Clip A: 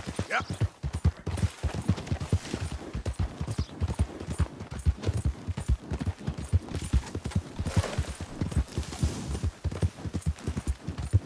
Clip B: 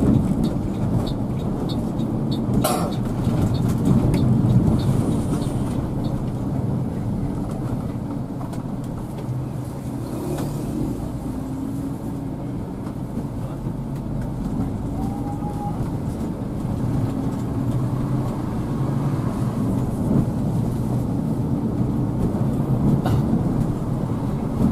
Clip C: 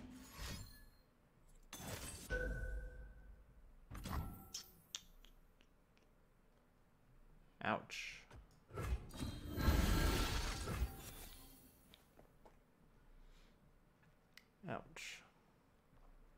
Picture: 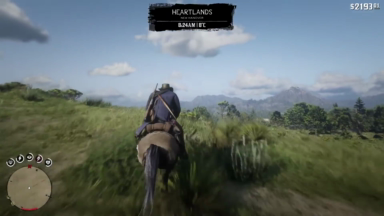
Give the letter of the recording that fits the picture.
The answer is A